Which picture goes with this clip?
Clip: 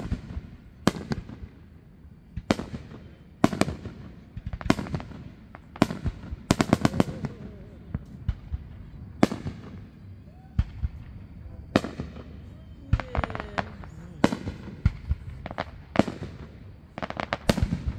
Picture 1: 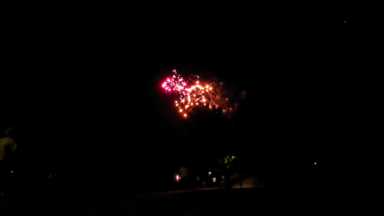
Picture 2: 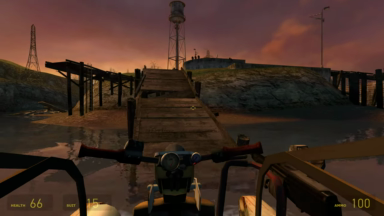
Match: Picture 1